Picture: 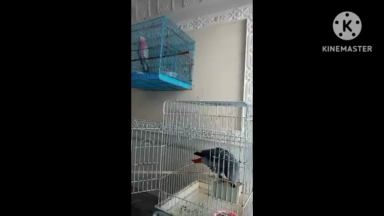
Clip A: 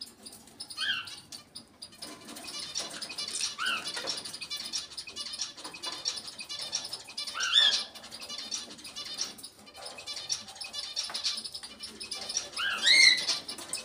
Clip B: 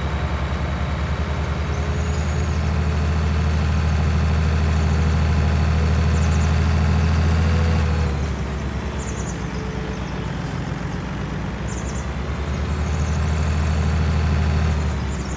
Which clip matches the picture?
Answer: A